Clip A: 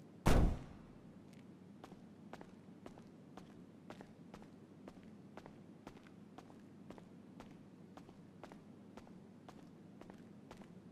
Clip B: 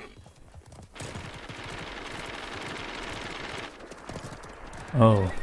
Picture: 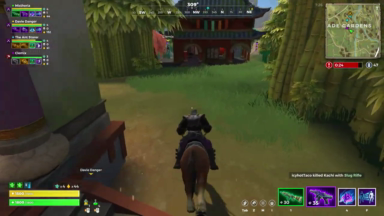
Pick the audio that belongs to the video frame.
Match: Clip B